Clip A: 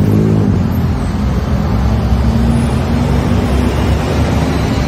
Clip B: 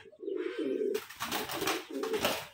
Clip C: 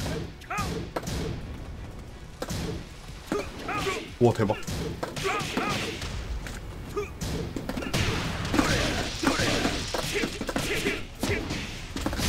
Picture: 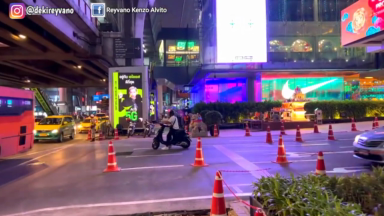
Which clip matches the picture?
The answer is A